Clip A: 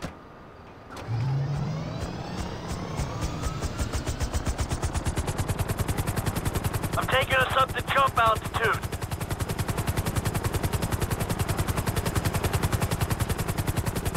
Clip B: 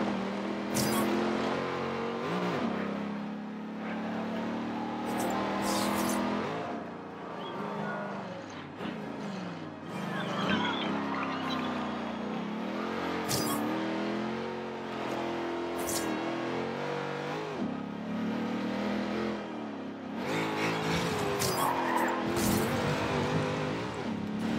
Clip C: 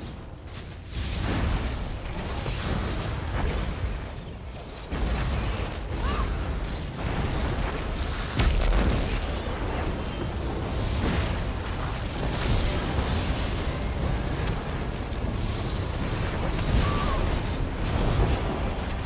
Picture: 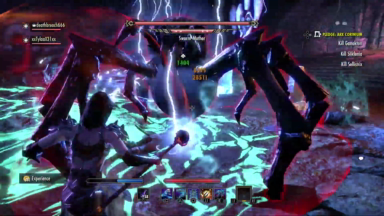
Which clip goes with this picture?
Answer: C